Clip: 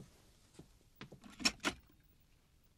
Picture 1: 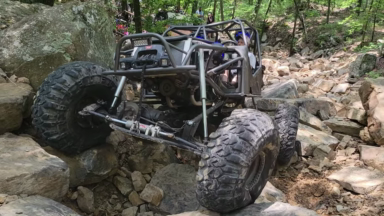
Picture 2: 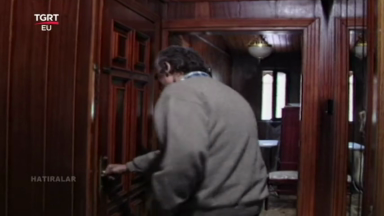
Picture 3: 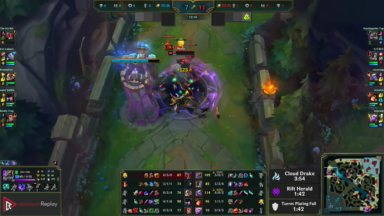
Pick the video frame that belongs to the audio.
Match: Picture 2